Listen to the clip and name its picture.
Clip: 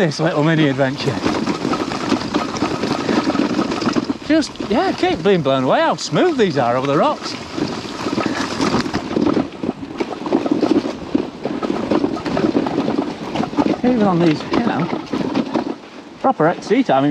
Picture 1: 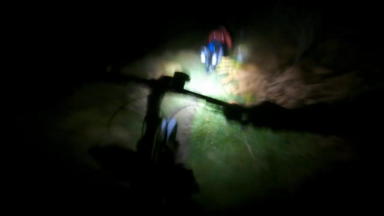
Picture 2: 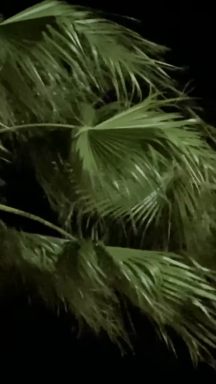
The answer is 1